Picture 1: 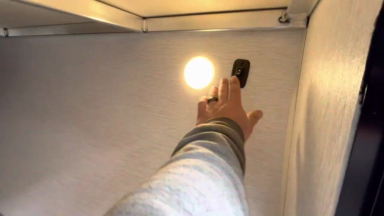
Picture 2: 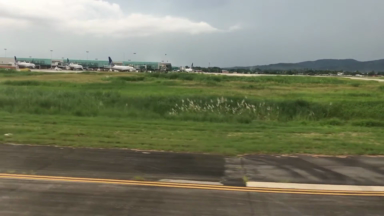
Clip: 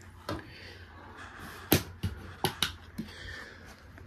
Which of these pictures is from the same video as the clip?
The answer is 1